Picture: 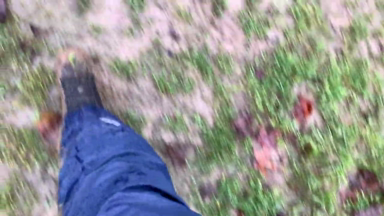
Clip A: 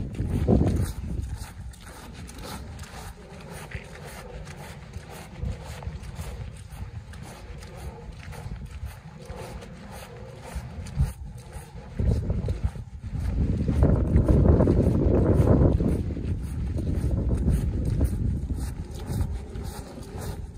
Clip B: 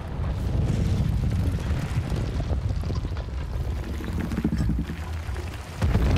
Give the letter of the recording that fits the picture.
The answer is A